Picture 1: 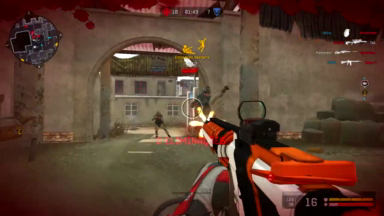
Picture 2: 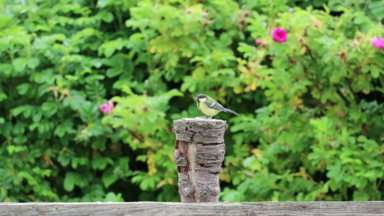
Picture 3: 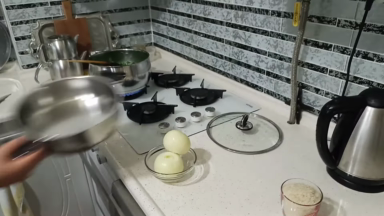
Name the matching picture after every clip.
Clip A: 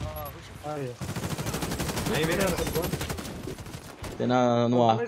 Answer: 1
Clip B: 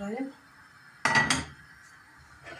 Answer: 3